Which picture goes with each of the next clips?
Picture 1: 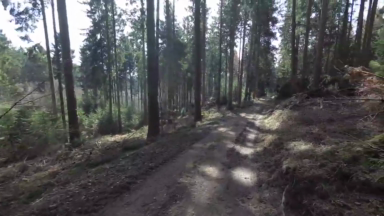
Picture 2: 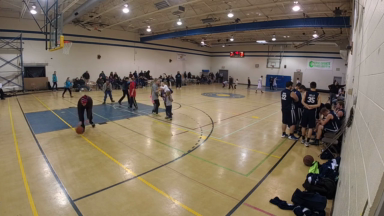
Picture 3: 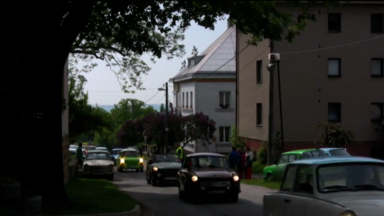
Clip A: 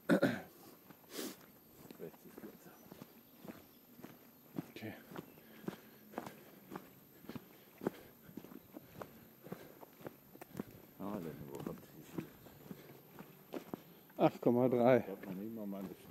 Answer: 1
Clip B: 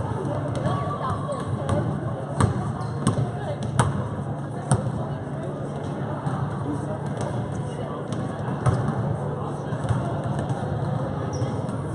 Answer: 2